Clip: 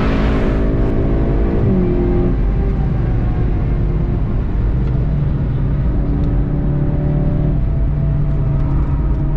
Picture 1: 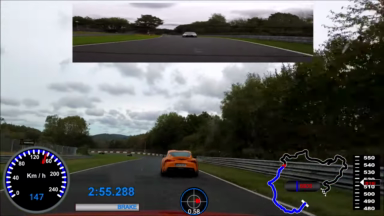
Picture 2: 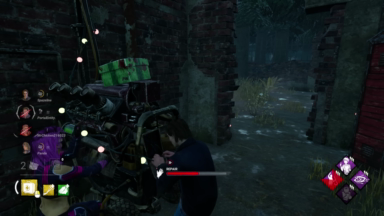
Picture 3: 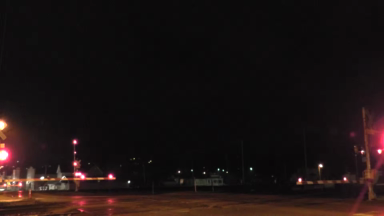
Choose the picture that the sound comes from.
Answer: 1